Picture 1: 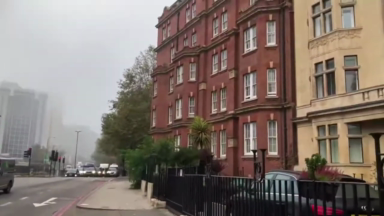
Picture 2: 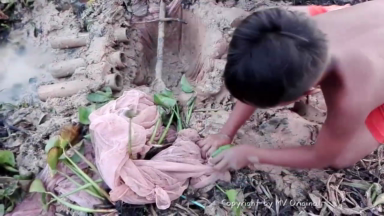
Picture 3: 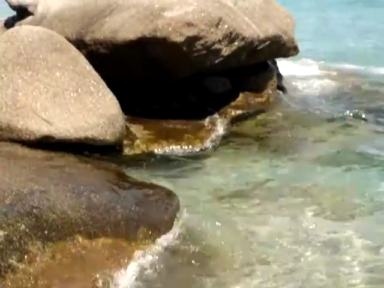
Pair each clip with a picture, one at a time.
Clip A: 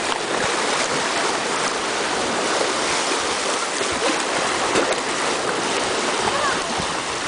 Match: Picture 3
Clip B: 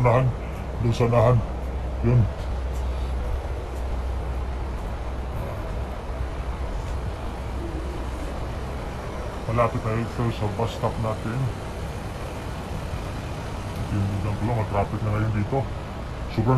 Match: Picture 1